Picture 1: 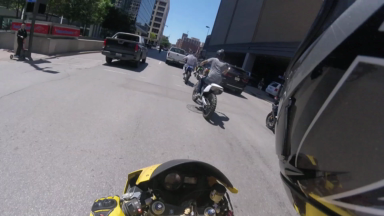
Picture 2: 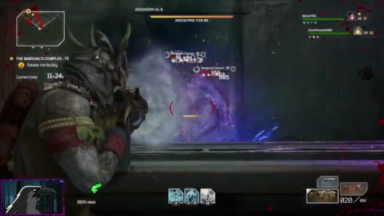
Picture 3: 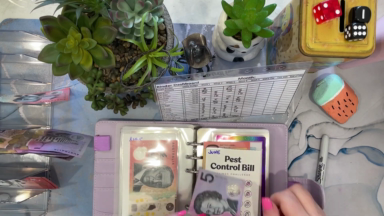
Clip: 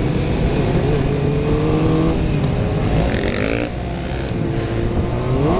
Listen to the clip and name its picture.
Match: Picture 1